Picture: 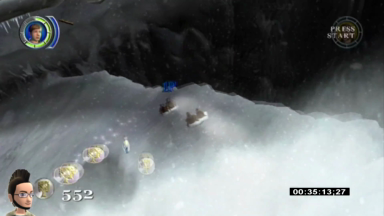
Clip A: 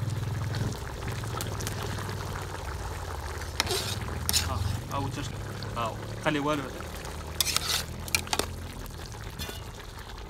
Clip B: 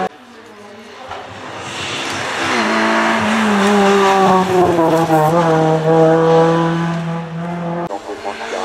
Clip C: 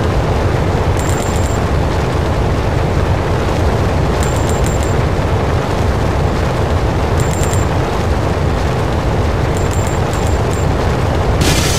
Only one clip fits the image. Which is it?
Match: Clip C